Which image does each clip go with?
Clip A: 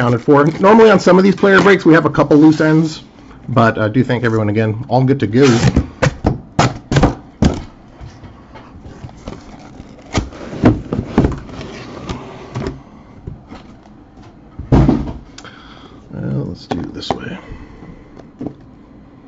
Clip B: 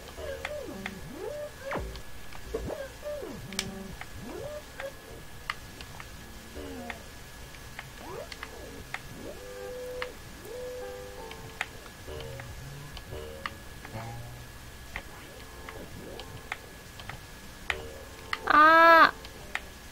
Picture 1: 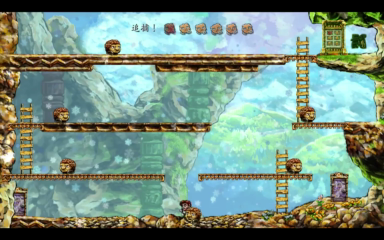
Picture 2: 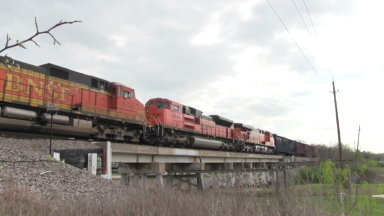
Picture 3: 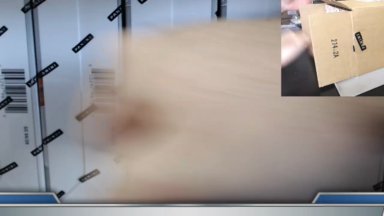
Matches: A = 3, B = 1